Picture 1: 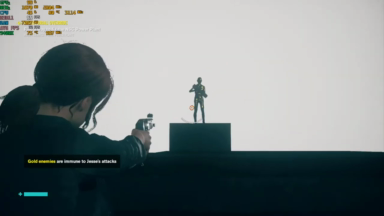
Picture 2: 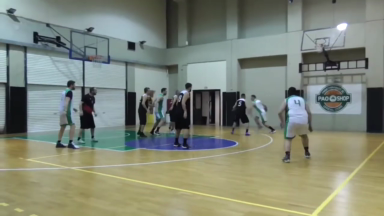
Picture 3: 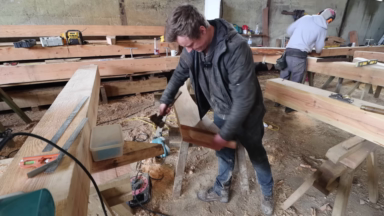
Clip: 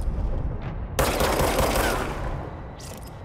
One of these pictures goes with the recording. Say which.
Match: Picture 1